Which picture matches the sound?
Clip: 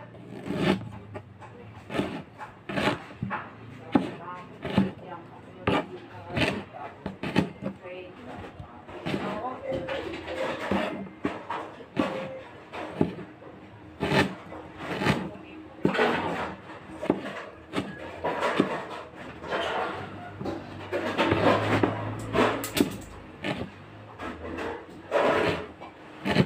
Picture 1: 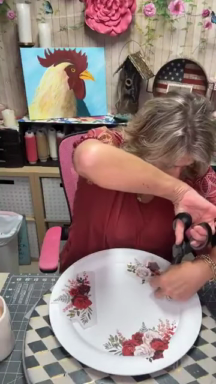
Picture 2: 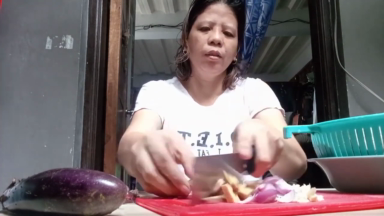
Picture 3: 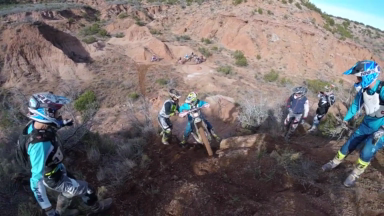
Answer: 2